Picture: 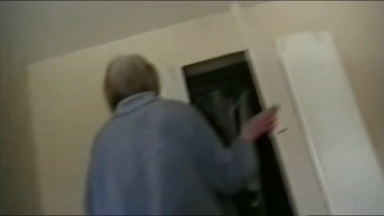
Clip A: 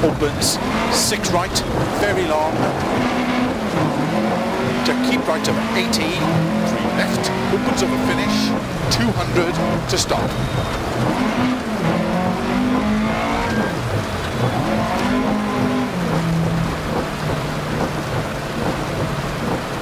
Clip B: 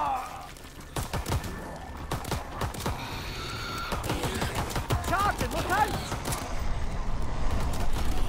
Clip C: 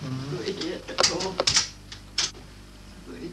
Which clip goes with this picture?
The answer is C